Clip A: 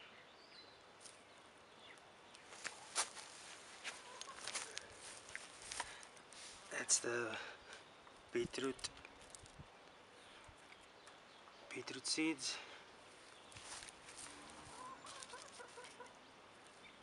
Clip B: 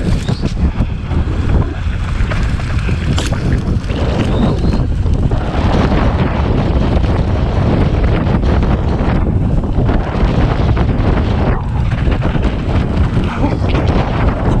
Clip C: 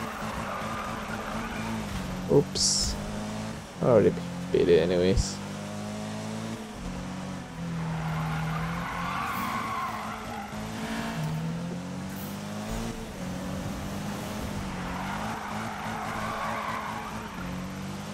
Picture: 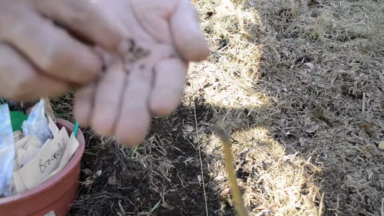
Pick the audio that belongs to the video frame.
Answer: A